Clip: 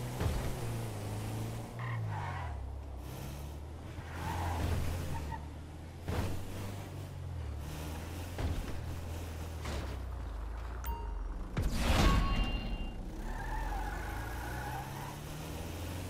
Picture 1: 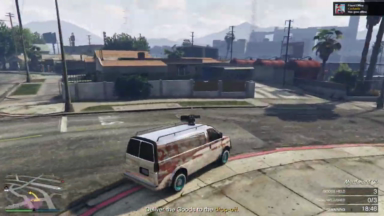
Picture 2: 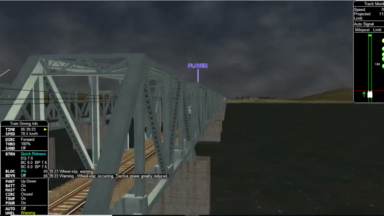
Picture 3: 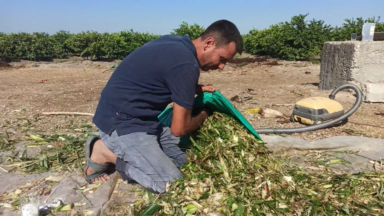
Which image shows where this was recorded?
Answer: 1